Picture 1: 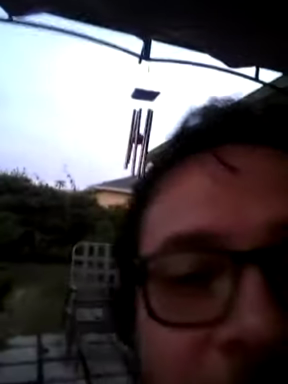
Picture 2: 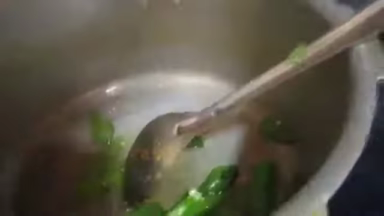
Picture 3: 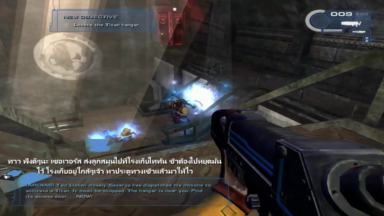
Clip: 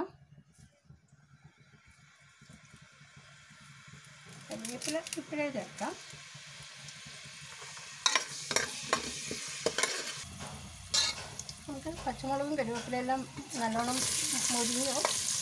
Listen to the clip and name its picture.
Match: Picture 2